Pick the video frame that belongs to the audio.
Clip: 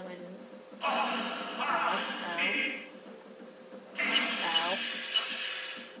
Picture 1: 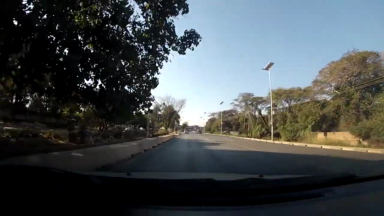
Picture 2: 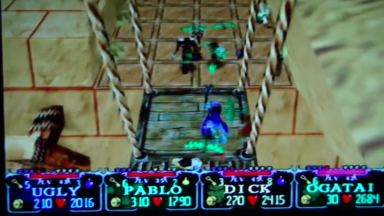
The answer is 2